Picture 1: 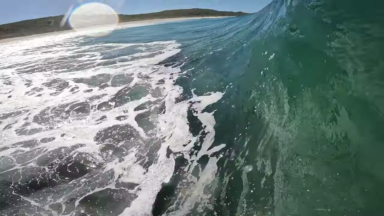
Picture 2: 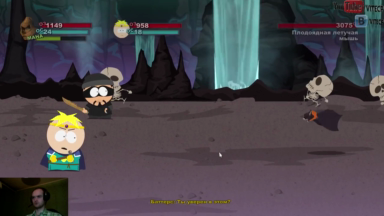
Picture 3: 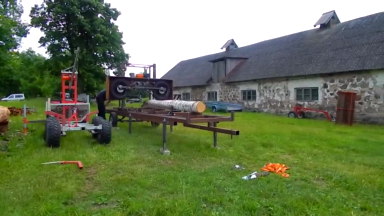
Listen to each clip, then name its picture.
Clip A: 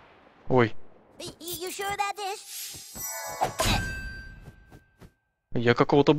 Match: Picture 2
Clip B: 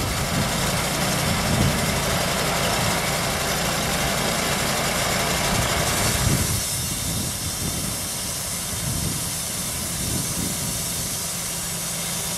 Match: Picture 3